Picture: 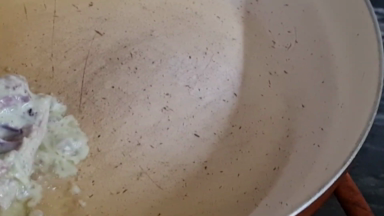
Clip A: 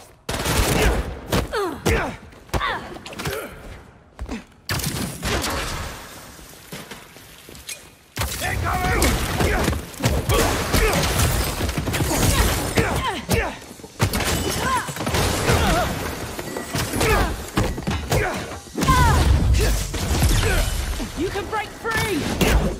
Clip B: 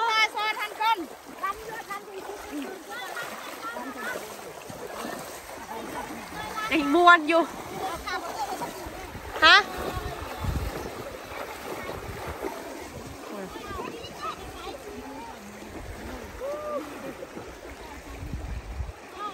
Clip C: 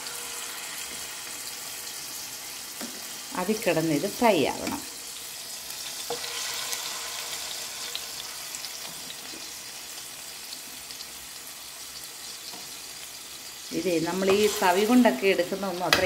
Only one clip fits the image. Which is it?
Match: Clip C